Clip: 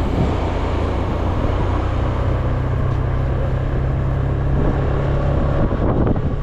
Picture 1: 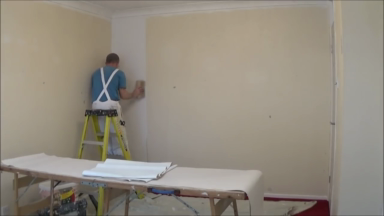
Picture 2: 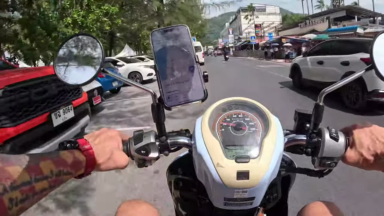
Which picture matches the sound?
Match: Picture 2